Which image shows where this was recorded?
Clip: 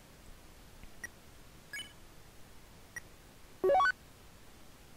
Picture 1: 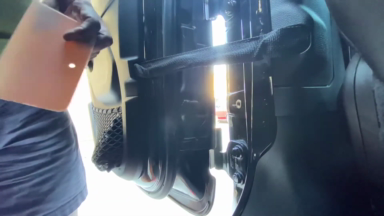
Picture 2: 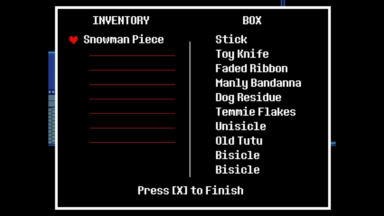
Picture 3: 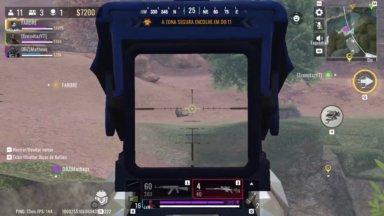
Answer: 2